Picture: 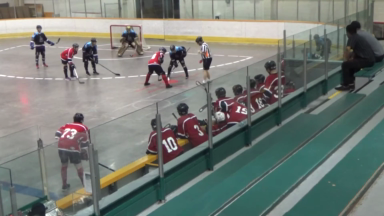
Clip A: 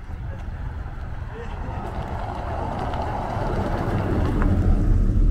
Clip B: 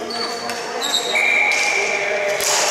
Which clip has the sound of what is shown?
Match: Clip B